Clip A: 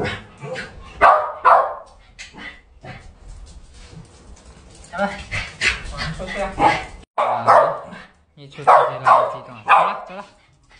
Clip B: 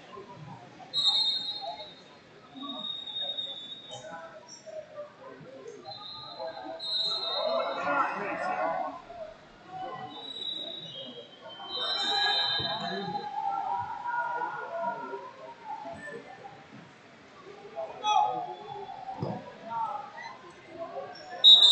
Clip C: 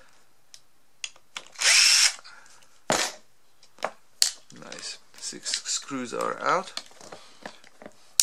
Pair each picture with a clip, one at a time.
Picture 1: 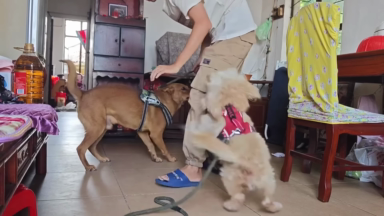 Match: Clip A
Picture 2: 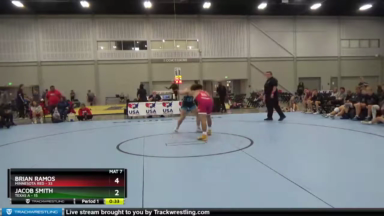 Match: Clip B